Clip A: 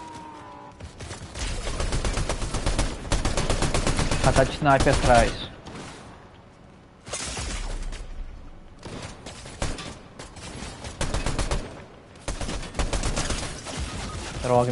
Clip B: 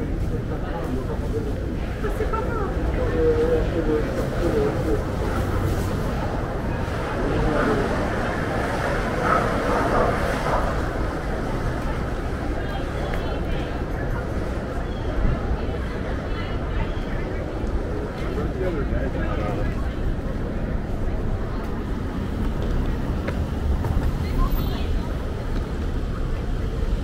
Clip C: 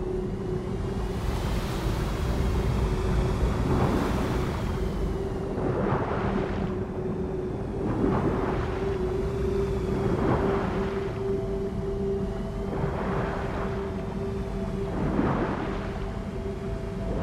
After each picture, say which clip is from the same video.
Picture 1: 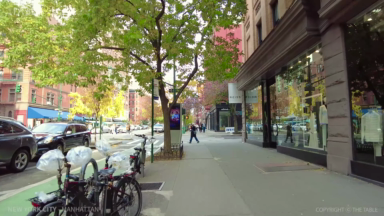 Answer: B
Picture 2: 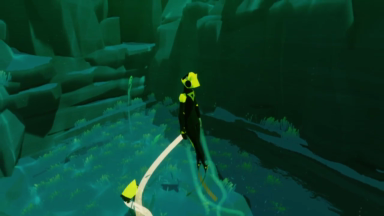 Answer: C